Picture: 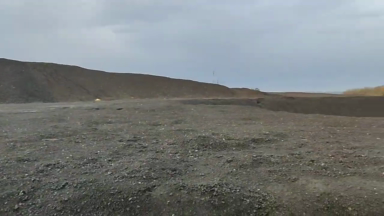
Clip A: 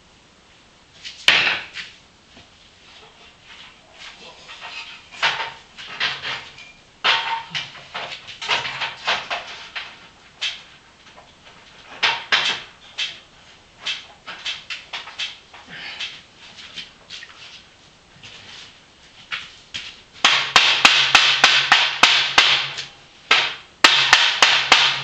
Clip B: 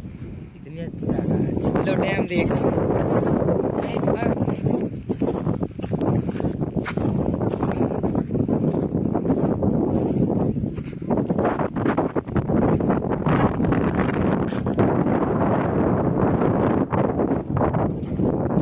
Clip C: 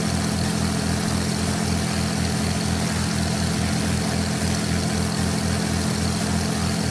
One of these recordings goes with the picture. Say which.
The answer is B